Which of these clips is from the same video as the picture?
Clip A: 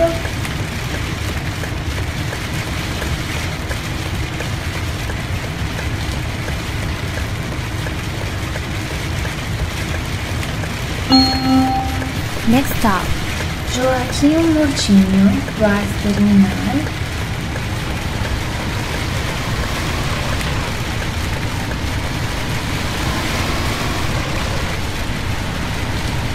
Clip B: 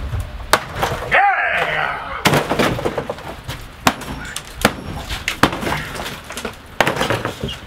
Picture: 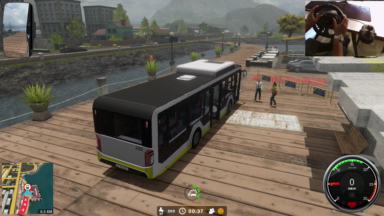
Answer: A